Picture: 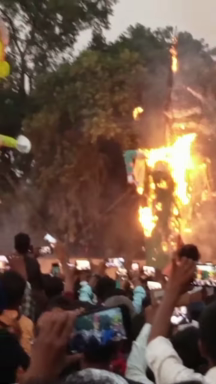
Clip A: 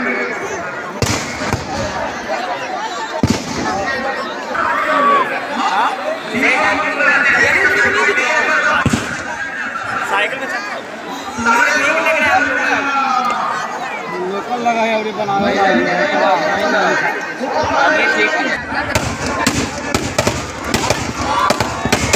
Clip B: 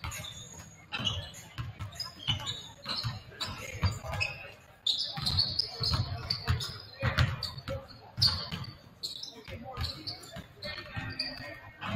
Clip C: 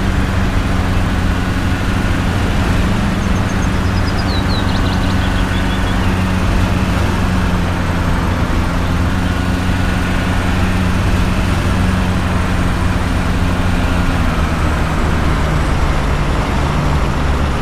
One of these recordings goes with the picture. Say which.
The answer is A